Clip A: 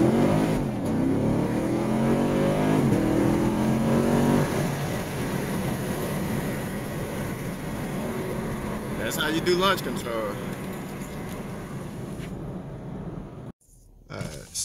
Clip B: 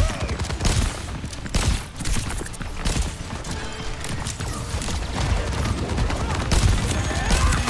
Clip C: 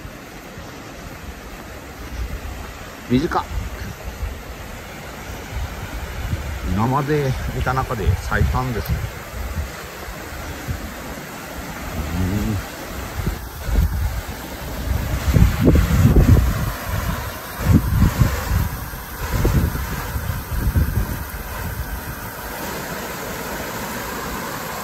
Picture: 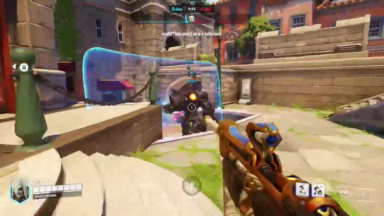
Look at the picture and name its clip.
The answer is B